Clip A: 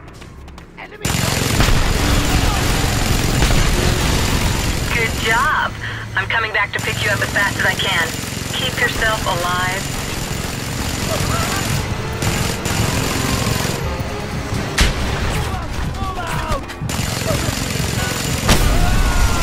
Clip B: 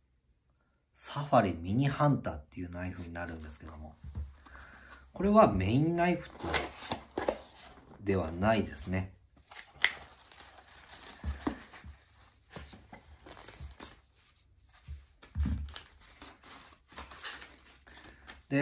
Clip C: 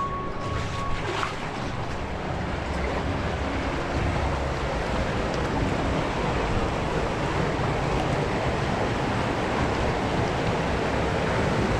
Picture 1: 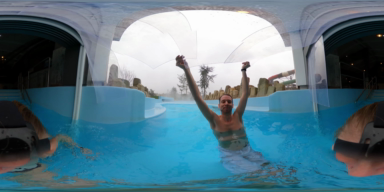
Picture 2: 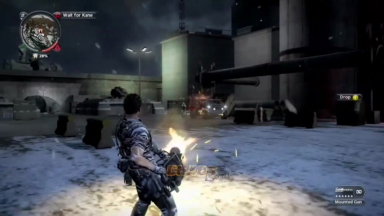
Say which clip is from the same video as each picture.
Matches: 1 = C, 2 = A